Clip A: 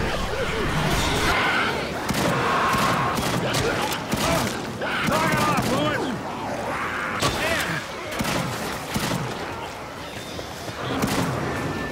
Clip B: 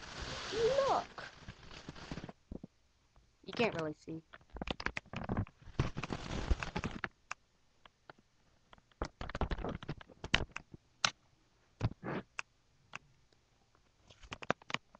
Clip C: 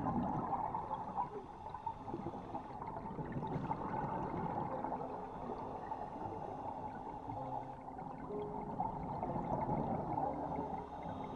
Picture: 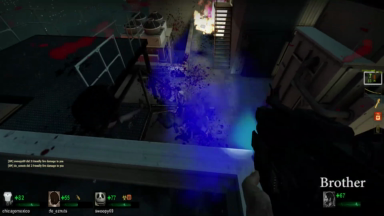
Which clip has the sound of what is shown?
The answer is A